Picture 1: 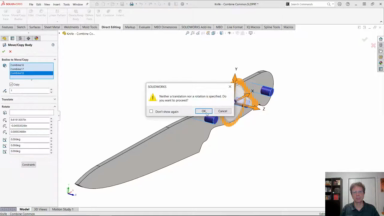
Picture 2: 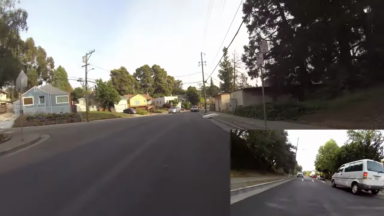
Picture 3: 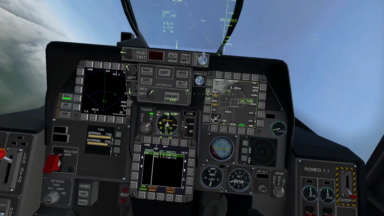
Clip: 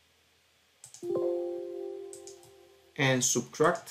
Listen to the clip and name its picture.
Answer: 1